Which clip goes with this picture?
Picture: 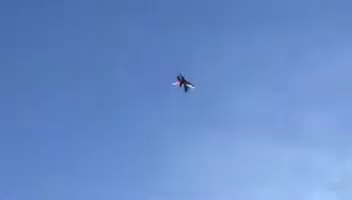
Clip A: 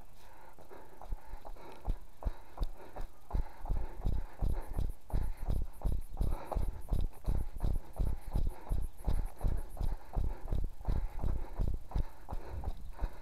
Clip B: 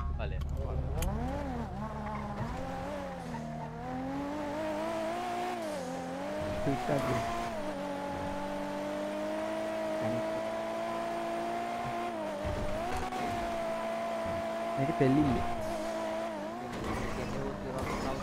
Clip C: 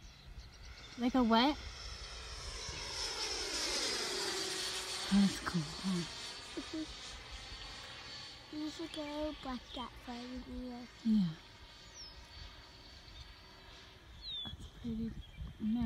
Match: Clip C